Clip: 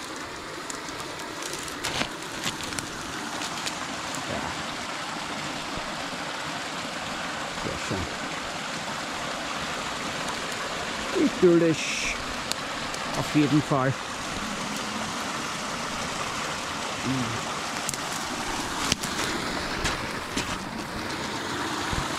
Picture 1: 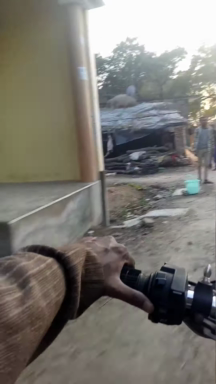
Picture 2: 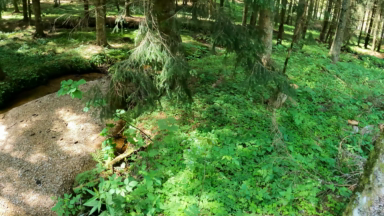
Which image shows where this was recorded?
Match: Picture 2